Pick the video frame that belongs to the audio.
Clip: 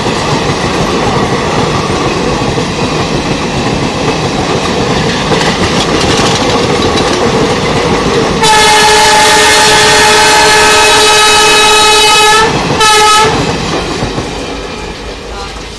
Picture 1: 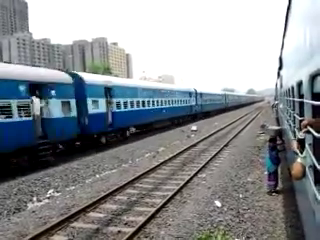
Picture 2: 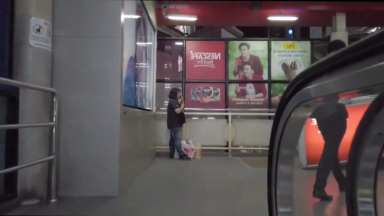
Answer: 1